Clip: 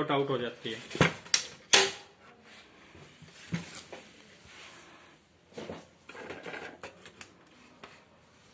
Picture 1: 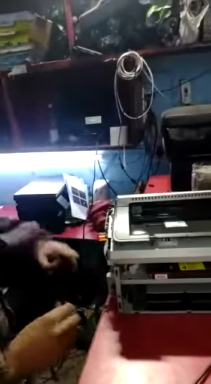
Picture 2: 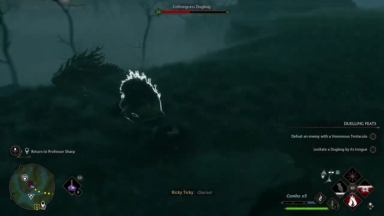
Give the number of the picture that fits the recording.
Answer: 1